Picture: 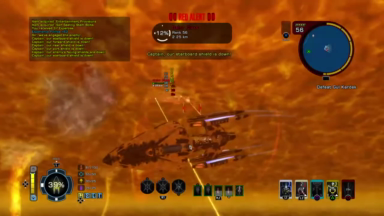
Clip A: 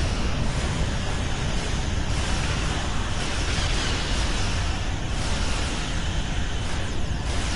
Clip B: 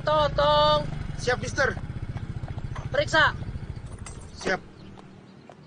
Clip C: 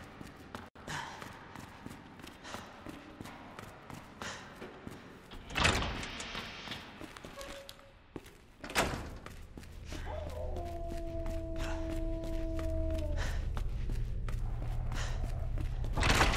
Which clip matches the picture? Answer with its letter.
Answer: A